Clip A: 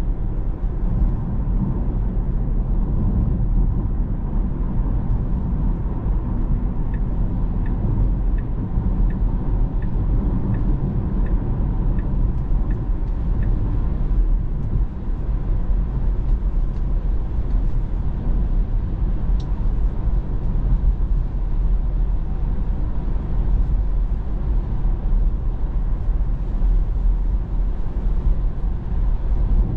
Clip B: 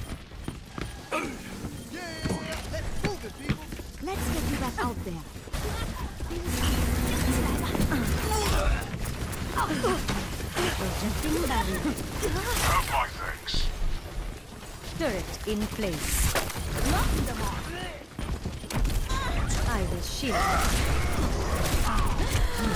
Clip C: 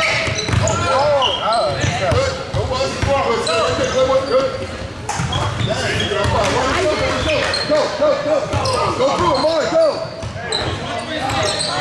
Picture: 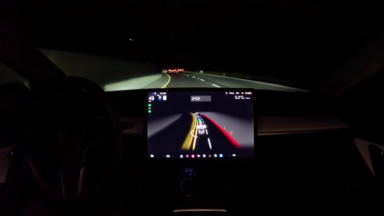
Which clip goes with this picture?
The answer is A